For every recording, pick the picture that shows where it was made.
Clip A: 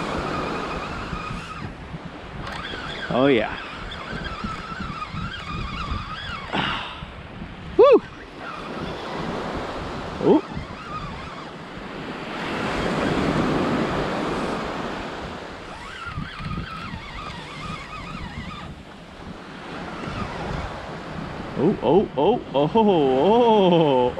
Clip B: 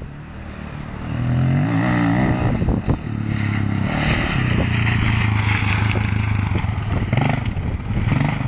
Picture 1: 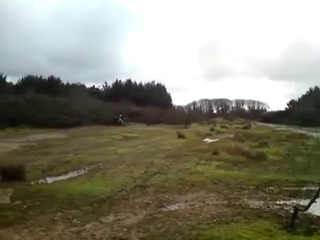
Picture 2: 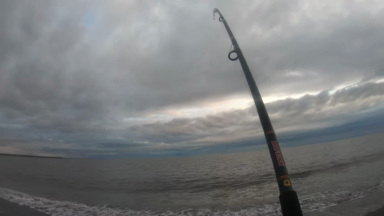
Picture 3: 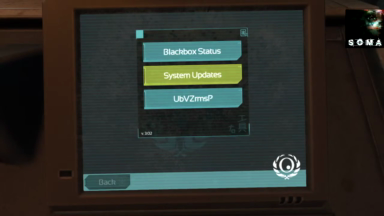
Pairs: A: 2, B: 1